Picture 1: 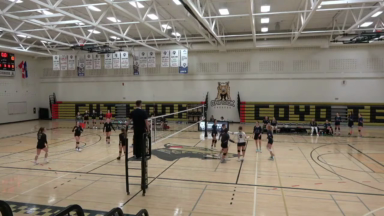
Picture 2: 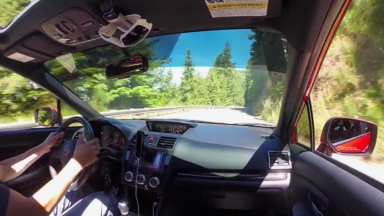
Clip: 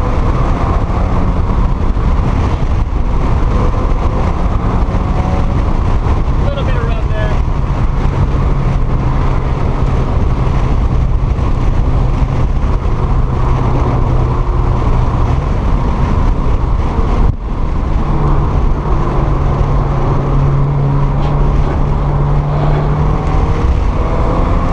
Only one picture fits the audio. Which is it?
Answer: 2